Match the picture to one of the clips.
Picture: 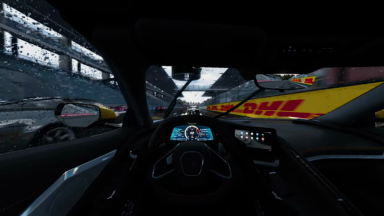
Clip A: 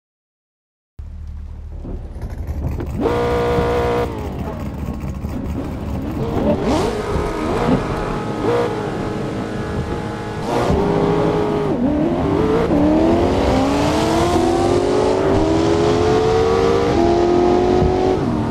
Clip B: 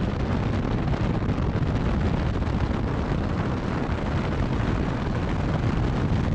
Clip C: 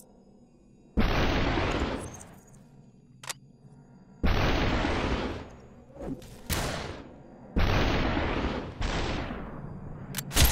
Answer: A